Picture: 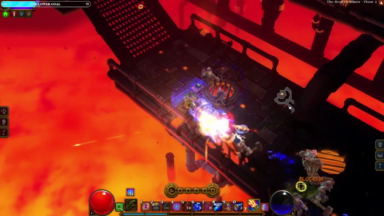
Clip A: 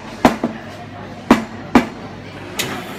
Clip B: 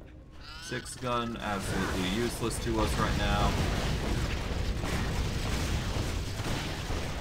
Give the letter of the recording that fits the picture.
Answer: B